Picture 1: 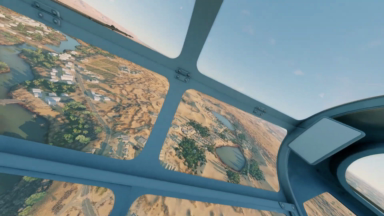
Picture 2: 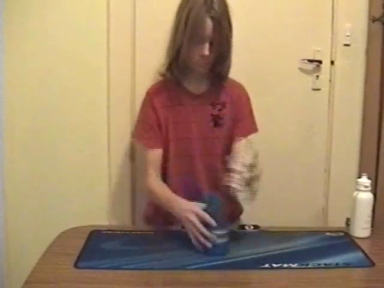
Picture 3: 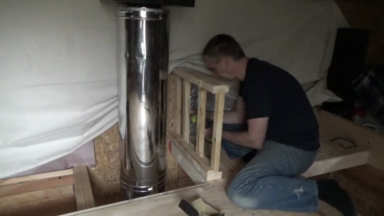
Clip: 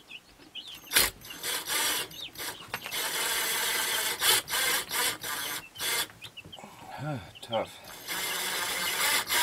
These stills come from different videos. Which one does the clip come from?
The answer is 3